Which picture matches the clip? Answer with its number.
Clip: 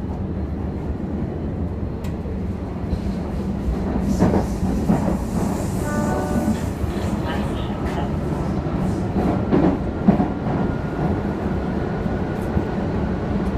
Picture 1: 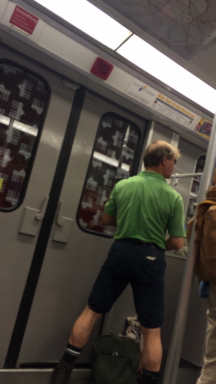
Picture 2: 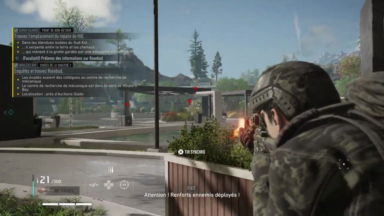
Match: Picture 1